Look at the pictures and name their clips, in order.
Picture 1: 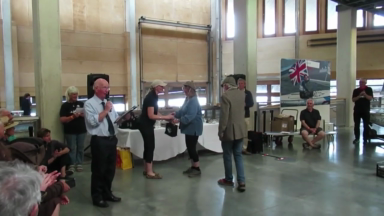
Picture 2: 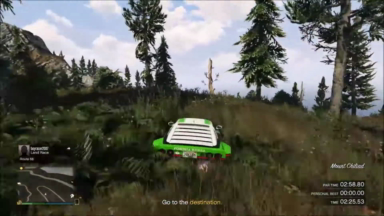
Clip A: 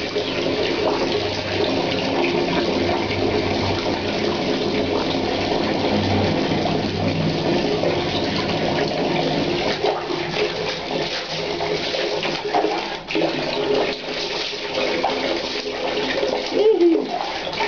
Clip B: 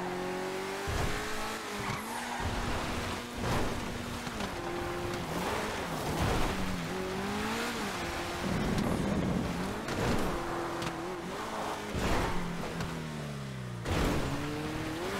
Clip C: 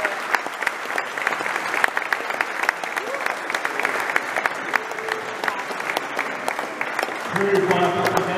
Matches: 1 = C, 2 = B